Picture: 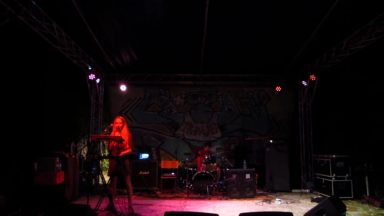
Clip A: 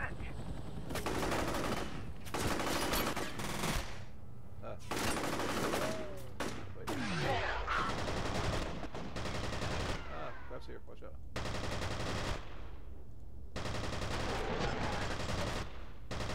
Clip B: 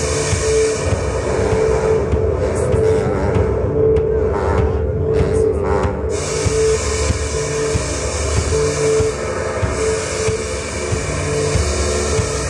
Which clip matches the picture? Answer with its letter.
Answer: B